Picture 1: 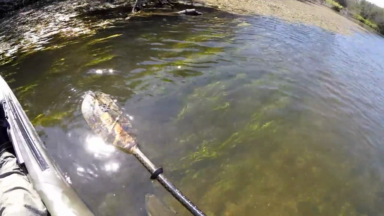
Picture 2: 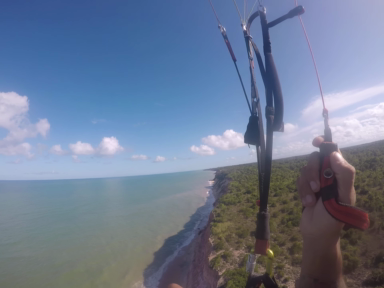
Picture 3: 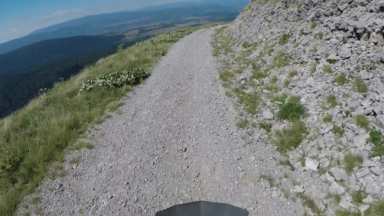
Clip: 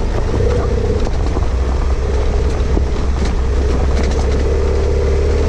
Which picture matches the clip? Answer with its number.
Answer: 3